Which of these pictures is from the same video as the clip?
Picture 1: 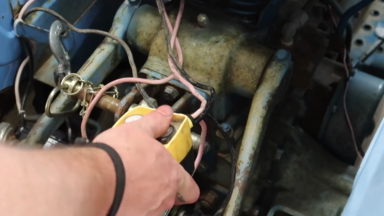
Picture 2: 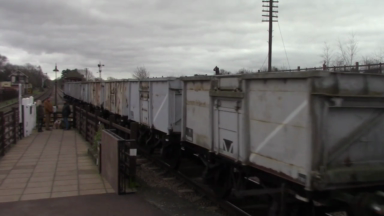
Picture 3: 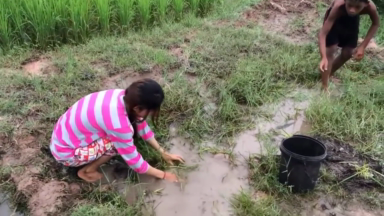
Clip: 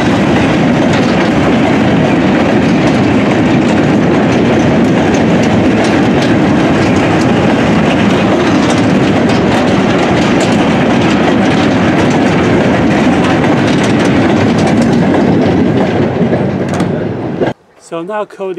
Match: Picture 2